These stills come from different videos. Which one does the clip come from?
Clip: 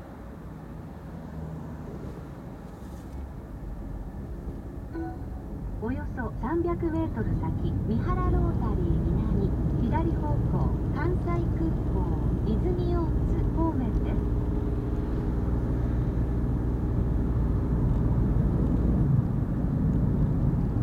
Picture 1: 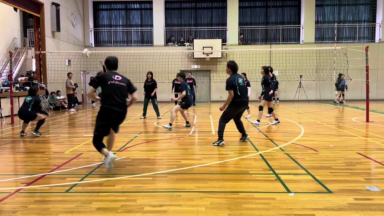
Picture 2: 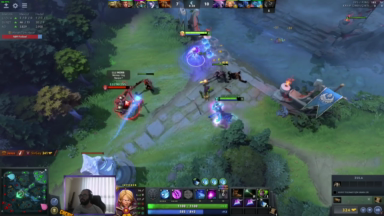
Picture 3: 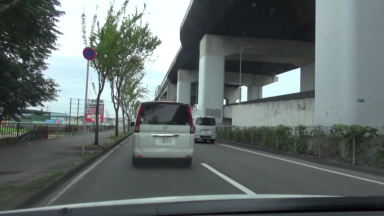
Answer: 3